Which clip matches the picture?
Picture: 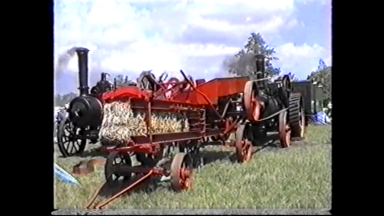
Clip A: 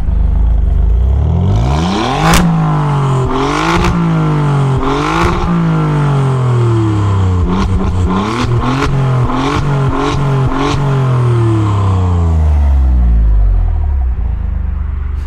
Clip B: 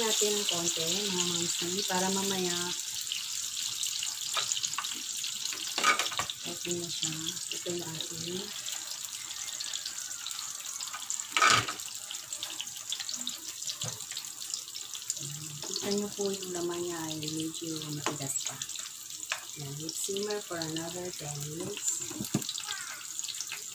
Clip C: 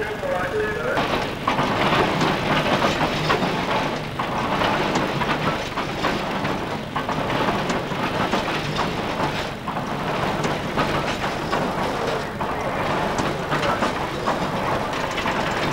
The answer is C